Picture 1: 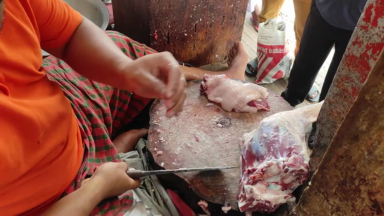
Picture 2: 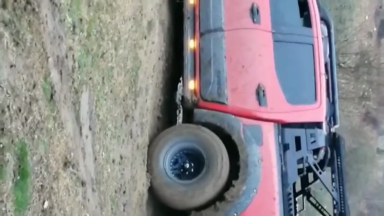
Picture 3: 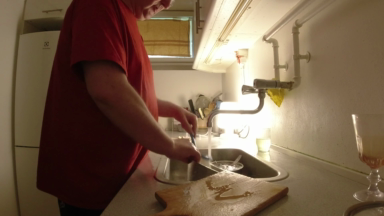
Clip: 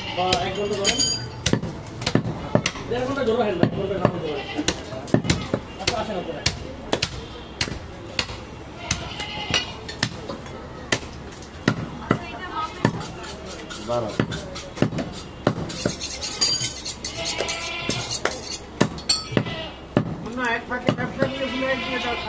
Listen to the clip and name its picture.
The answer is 1